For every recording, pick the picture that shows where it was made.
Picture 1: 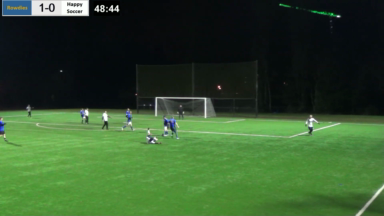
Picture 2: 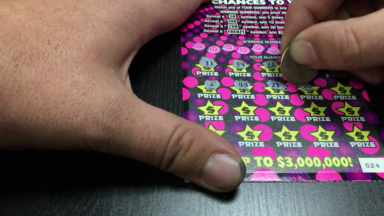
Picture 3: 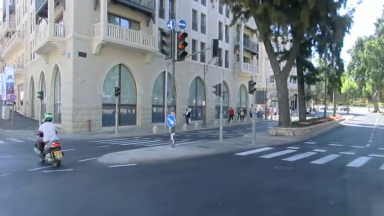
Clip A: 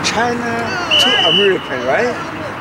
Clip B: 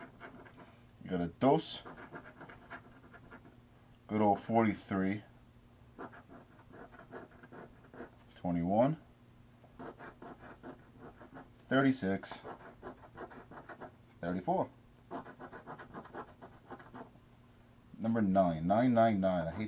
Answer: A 1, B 2